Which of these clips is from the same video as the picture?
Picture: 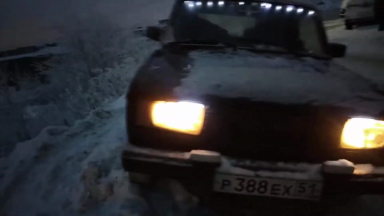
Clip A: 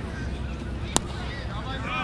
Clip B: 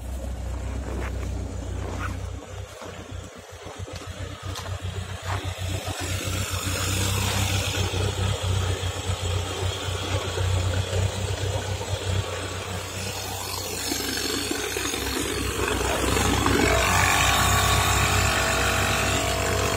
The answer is B